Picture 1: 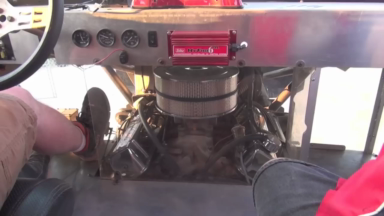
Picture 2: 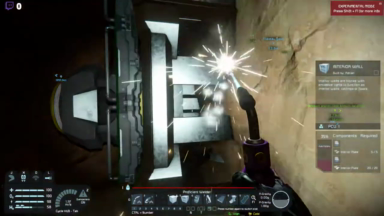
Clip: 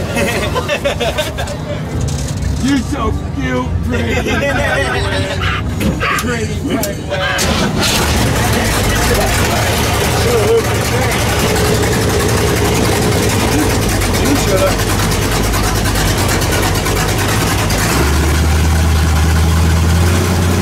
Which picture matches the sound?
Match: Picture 1